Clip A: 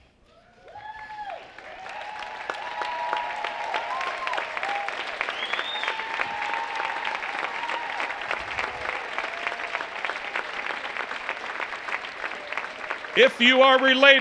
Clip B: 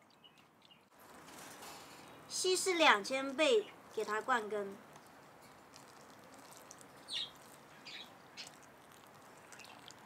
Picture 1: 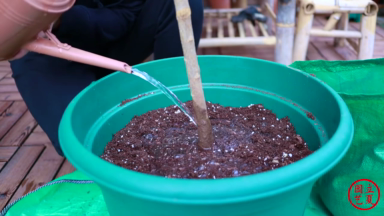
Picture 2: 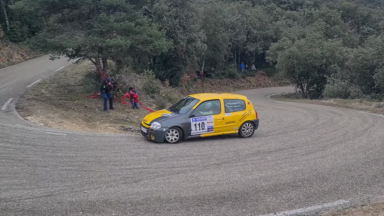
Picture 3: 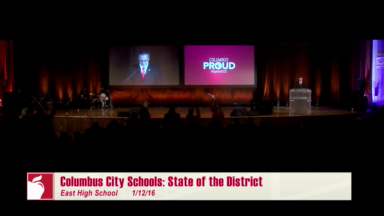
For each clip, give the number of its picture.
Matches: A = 3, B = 1